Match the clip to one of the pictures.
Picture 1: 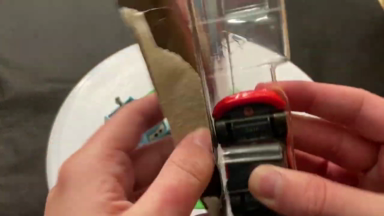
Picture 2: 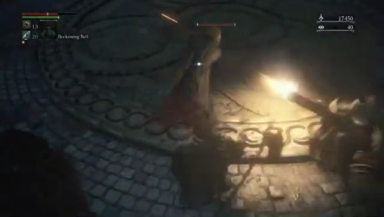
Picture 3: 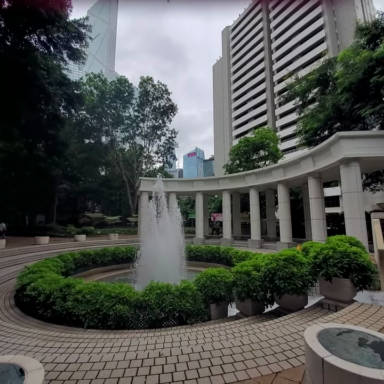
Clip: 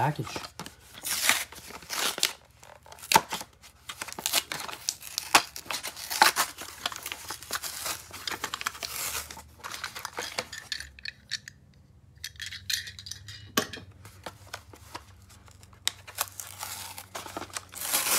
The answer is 1